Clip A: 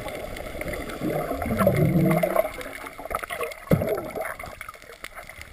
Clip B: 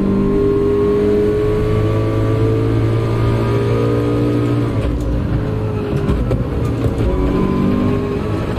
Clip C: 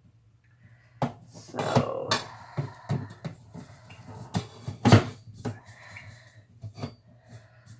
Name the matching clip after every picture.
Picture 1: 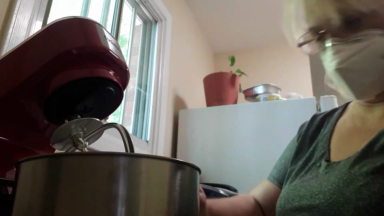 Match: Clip C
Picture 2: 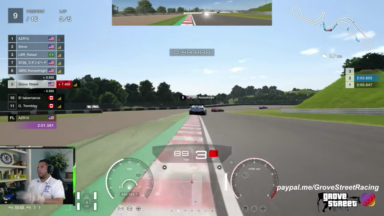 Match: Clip B